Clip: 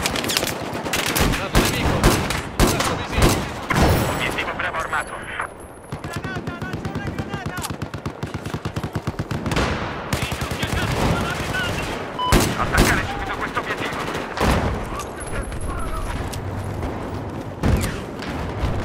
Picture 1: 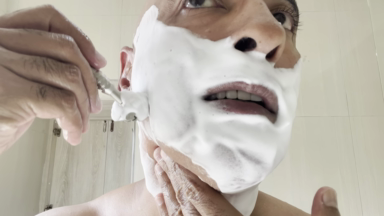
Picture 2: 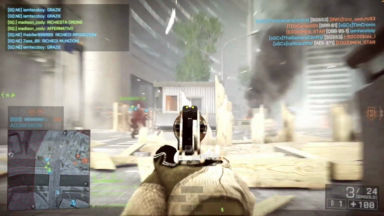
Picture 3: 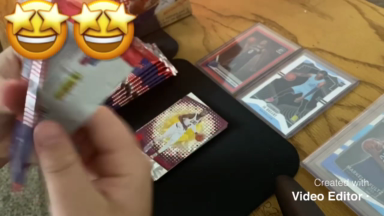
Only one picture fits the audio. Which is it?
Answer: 2